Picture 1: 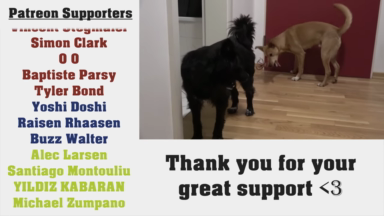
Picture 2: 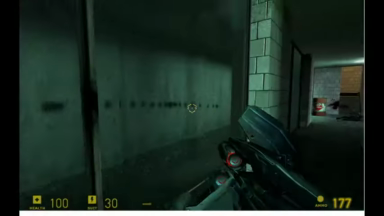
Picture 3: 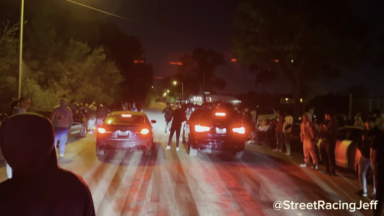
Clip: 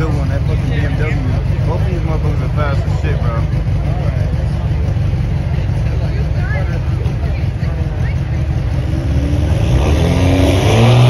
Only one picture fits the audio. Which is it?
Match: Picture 3